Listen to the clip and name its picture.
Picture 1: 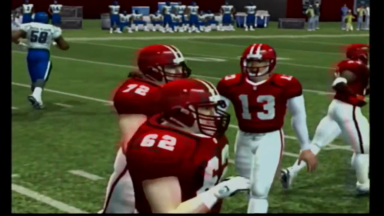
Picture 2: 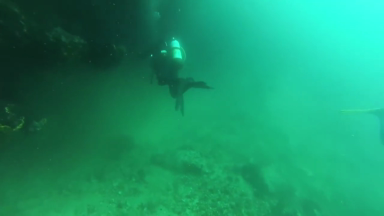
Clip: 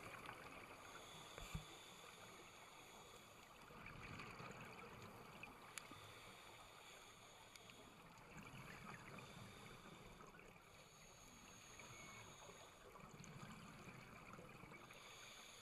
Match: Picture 2